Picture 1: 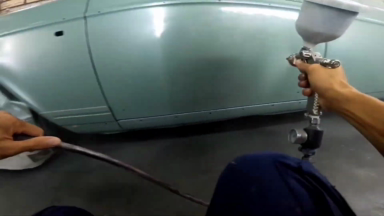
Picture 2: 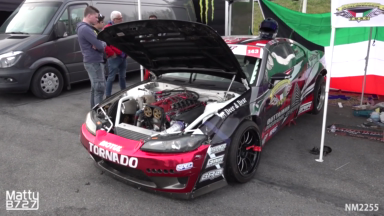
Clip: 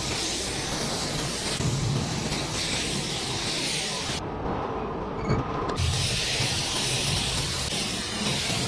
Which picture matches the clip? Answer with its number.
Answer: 1